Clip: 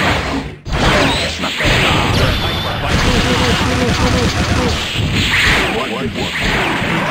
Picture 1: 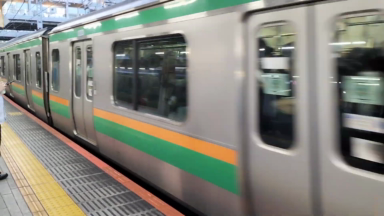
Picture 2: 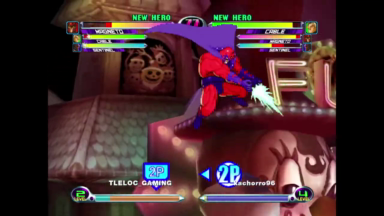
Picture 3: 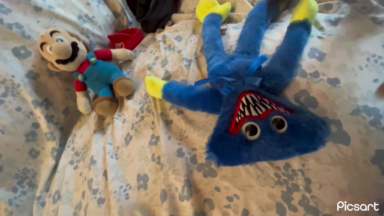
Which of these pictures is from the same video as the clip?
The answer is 2